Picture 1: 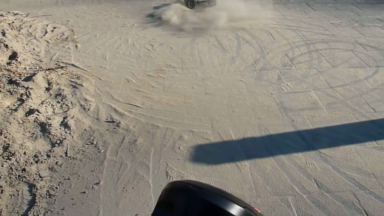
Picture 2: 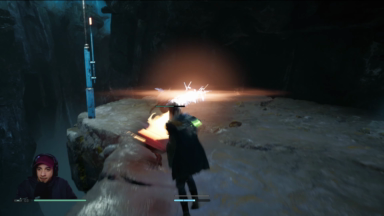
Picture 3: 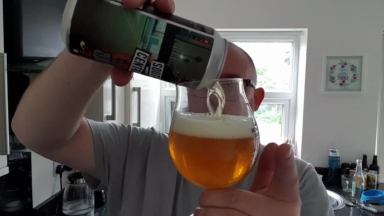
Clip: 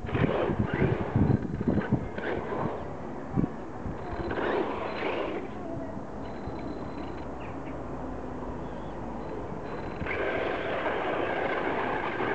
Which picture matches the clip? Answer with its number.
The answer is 1